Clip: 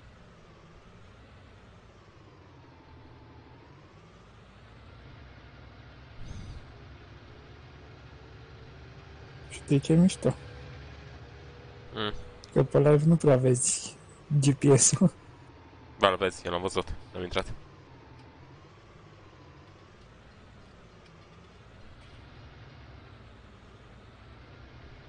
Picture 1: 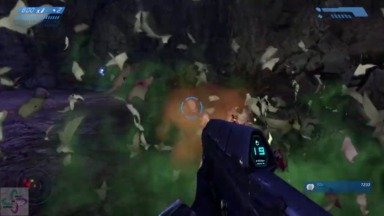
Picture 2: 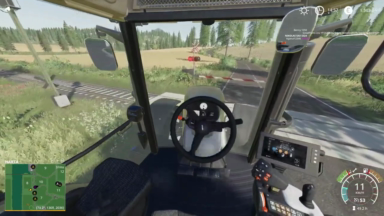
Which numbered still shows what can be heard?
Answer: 2